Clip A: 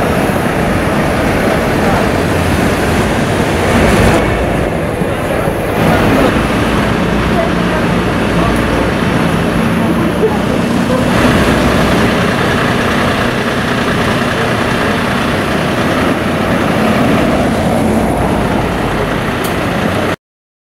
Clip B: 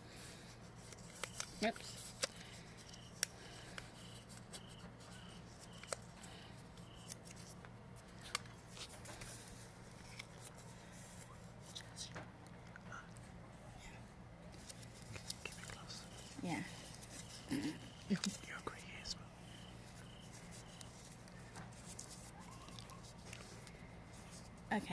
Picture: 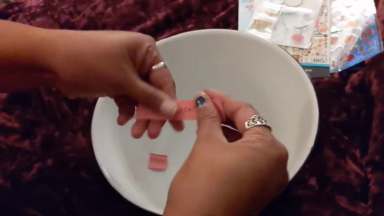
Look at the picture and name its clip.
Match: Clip B